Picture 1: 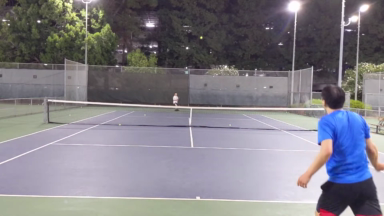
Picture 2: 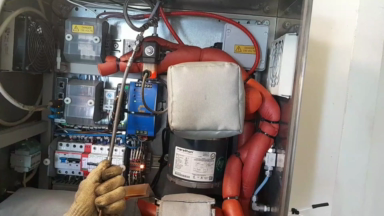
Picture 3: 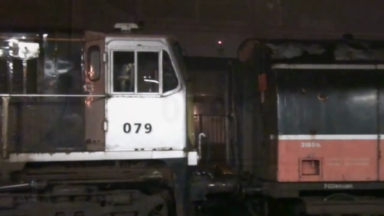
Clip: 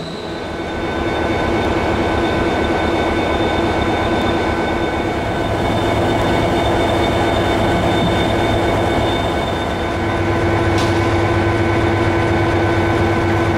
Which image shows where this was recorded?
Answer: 3